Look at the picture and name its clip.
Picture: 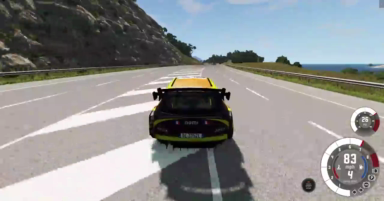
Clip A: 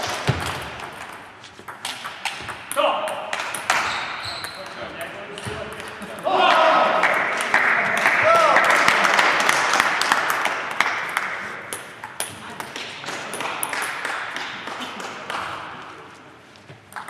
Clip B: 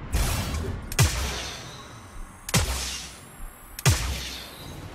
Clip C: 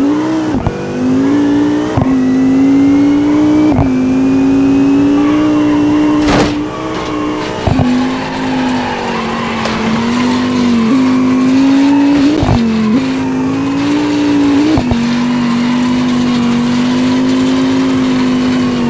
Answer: C